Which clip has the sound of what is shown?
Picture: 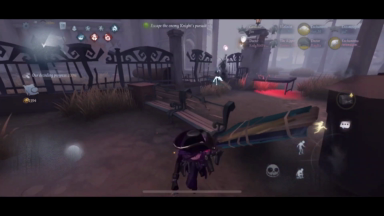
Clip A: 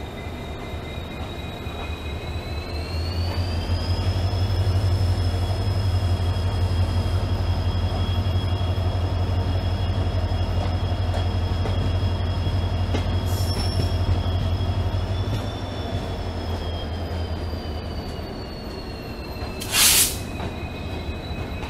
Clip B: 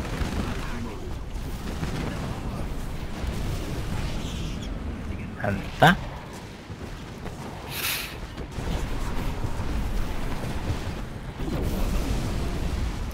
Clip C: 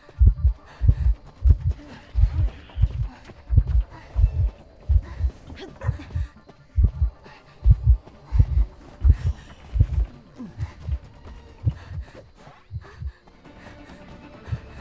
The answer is C